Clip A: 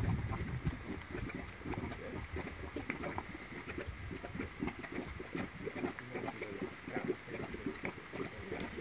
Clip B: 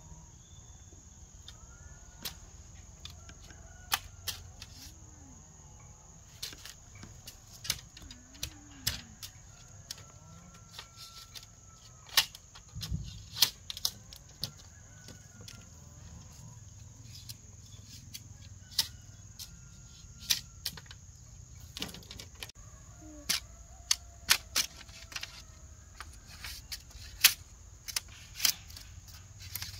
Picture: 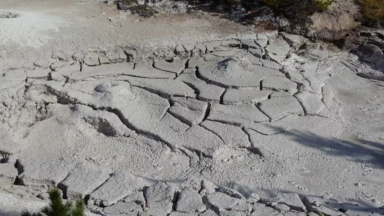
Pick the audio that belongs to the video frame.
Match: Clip A